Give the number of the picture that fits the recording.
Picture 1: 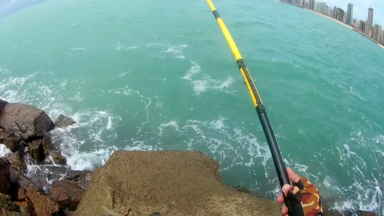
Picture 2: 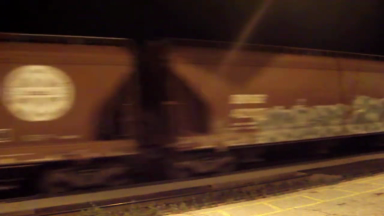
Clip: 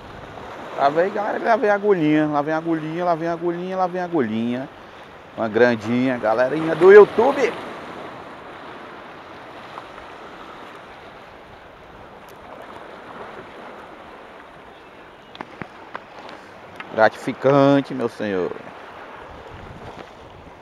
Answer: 1